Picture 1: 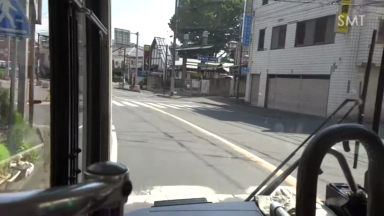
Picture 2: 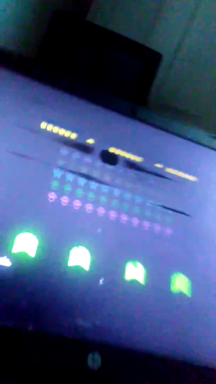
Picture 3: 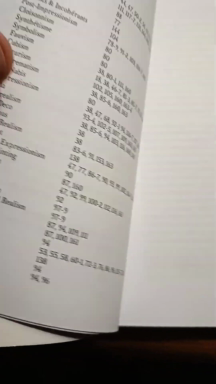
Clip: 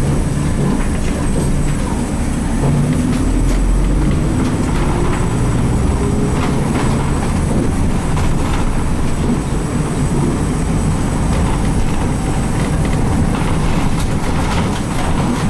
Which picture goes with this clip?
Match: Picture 1